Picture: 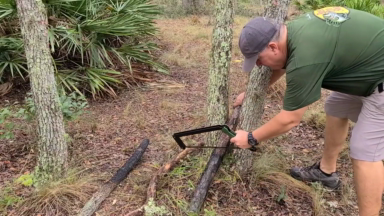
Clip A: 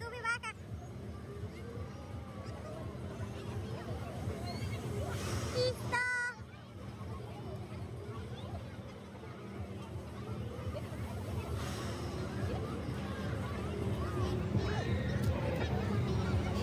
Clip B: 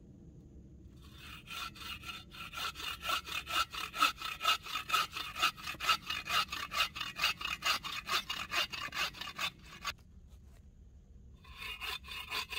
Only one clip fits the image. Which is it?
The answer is B